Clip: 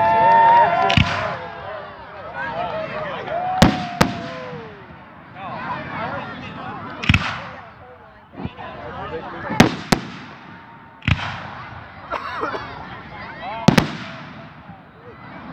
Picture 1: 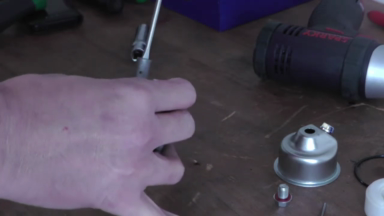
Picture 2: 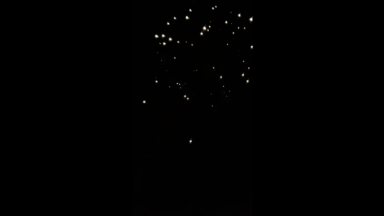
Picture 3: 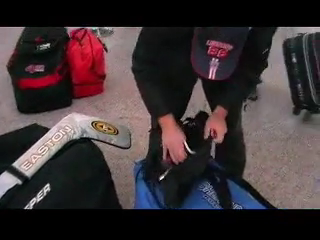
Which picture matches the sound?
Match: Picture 2